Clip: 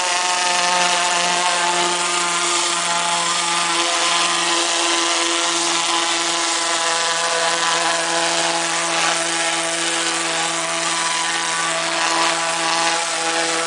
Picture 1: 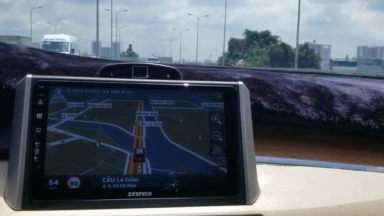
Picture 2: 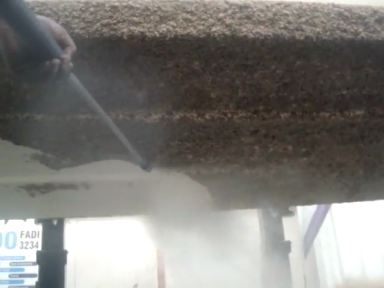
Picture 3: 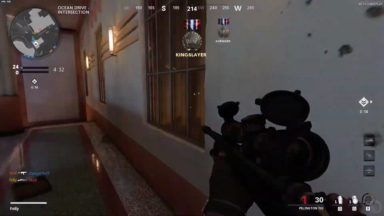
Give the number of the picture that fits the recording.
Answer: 2